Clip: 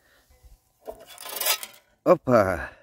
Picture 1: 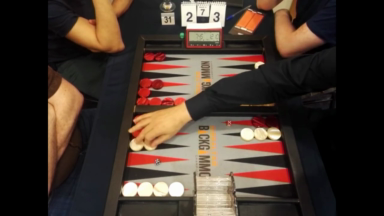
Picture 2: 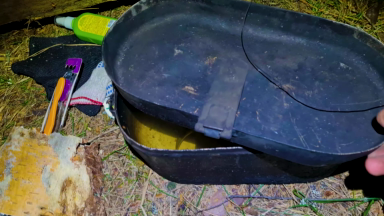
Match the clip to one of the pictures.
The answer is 2